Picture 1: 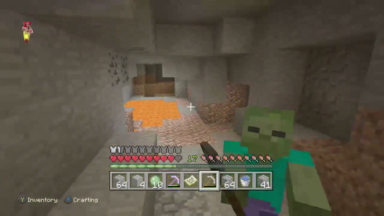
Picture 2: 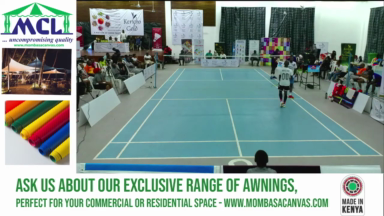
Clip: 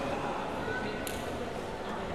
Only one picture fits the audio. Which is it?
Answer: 2